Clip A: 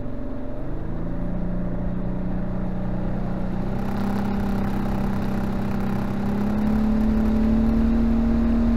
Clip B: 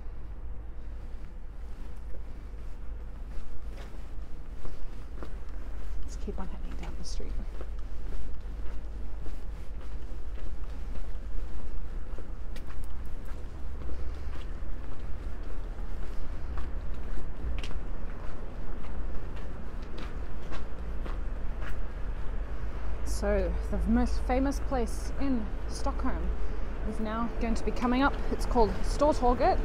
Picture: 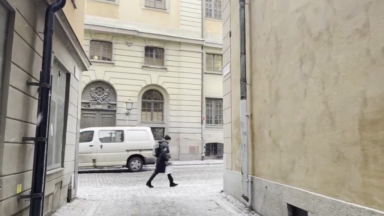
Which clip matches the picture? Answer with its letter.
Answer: B